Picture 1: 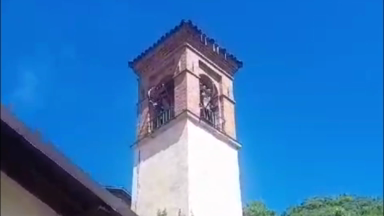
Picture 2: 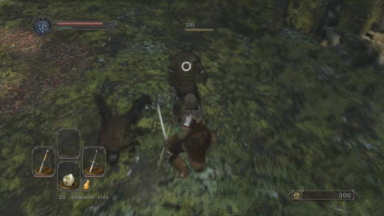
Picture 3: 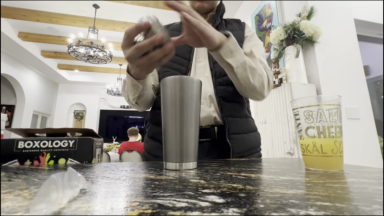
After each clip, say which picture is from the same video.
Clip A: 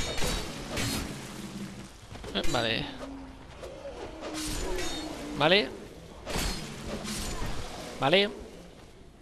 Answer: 2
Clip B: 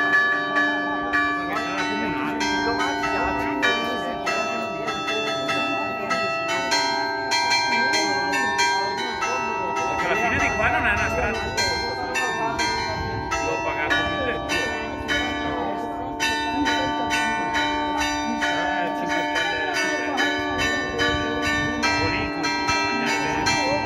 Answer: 1